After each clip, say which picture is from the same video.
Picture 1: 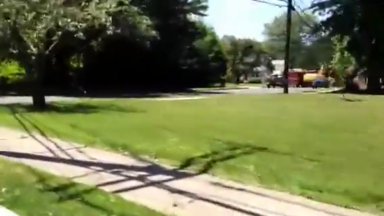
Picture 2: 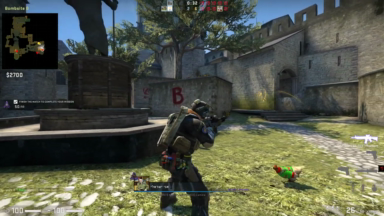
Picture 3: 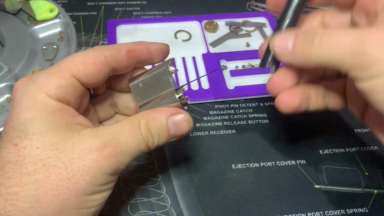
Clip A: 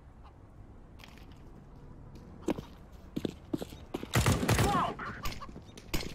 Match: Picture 2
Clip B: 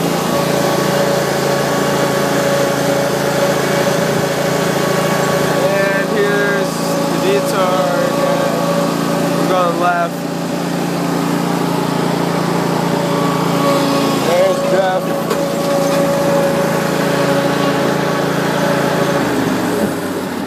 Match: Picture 1